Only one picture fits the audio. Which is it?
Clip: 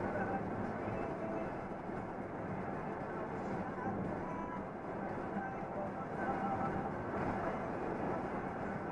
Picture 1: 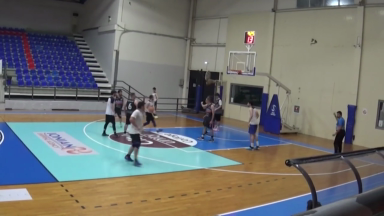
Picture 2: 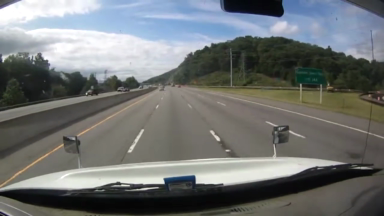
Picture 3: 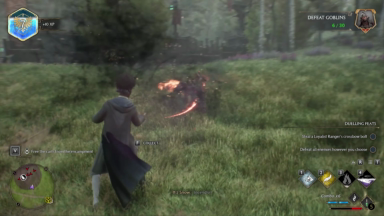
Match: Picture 2